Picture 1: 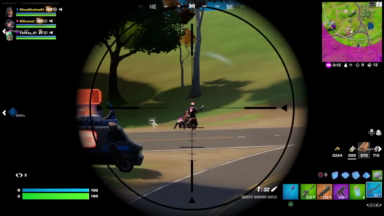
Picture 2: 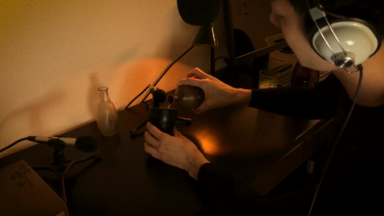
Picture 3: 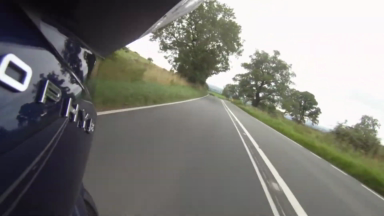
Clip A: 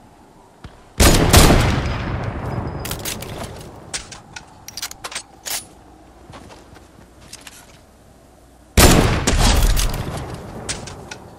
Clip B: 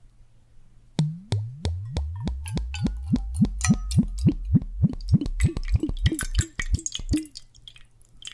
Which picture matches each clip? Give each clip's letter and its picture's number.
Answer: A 1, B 2